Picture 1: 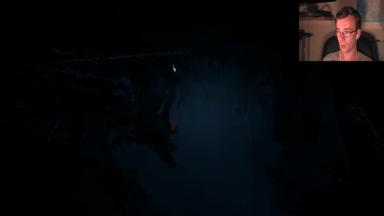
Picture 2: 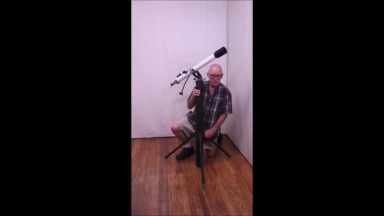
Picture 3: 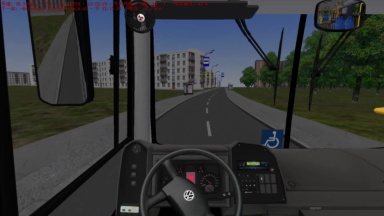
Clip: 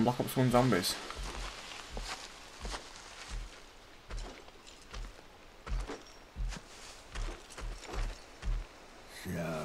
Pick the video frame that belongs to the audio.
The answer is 1